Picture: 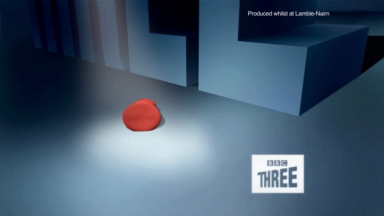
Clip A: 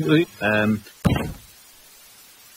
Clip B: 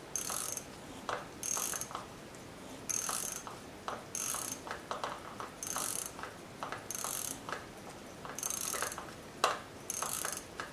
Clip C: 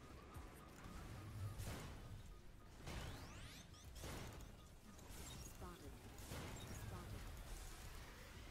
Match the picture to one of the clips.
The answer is A